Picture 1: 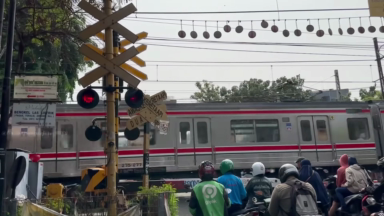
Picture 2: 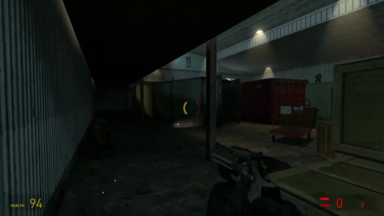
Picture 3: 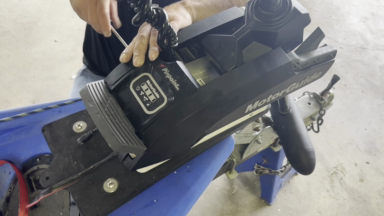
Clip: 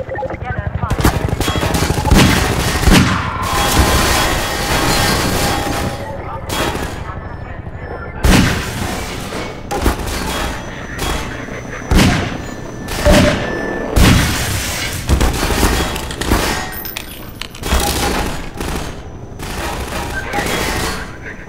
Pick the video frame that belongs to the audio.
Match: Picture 2